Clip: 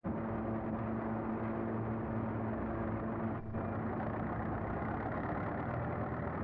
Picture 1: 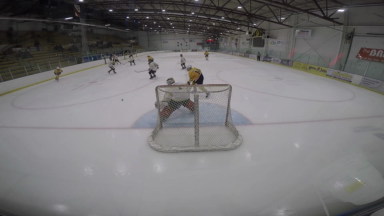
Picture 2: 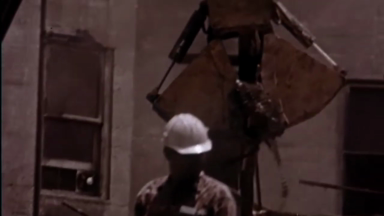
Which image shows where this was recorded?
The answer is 2